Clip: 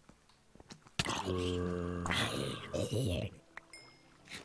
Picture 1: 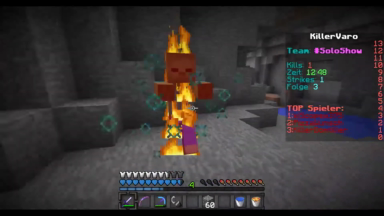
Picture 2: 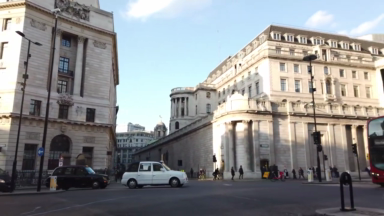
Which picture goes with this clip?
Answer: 1